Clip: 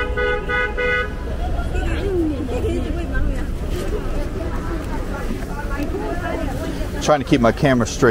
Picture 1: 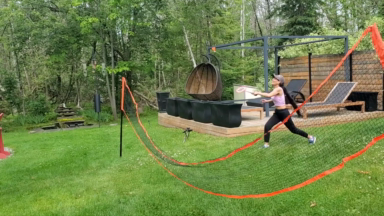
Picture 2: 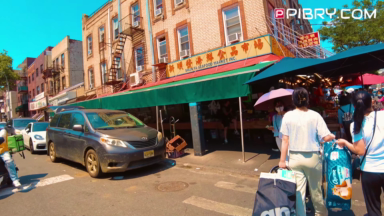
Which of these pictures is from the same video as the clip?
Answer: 2